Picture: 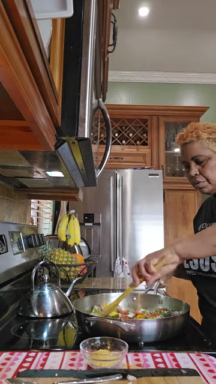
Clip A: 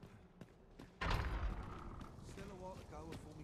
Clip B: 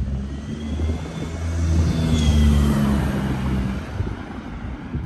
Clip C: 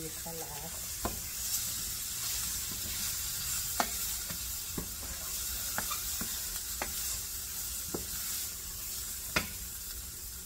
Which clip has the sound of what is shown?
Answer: C